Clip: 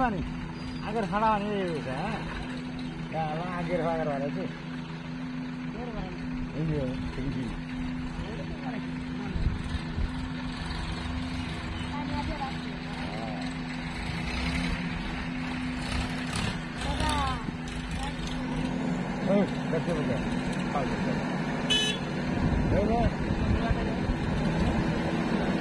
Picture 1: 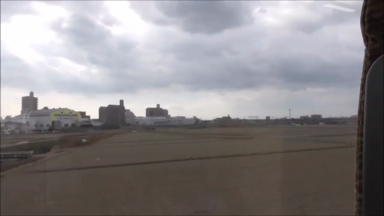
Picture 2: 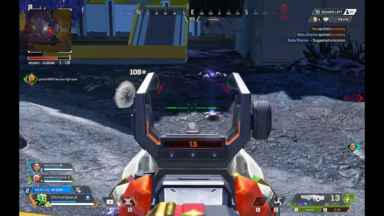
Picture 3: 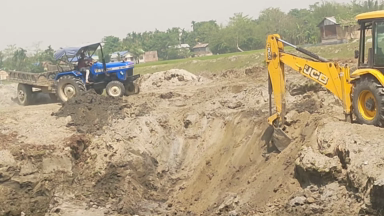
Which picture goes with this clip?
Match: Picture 3